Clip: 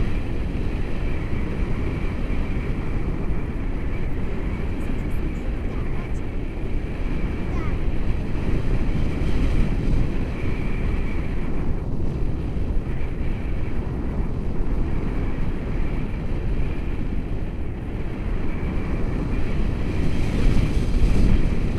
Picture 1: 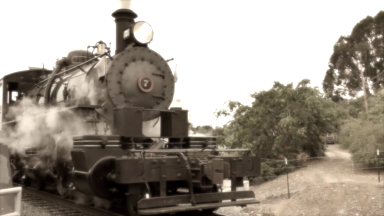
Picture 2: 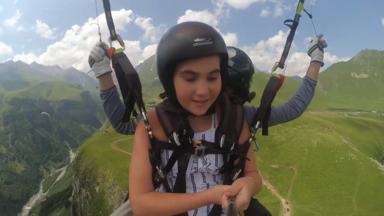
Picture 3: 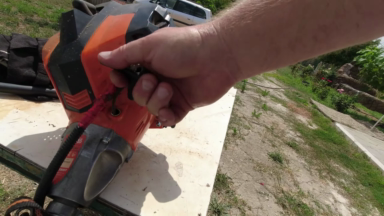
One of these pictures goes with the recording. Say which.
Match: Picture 2